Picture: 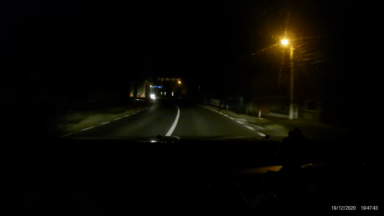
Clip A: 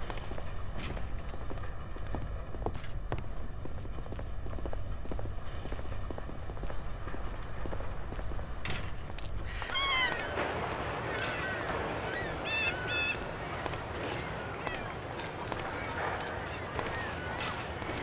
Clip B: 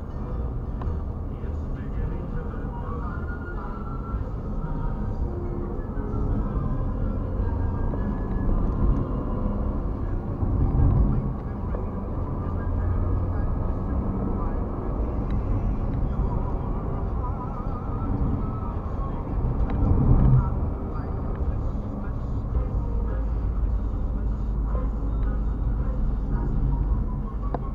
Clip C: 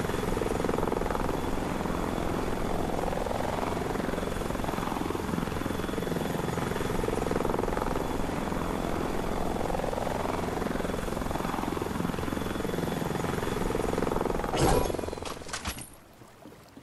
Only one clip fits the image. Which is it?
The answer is B